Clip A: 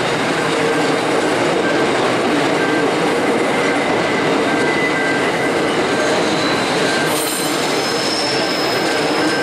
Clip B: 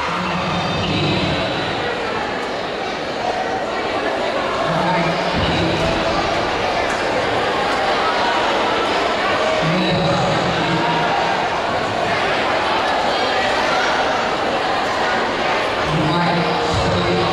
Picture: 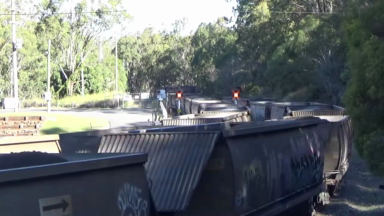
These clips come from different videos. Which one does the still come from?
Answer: A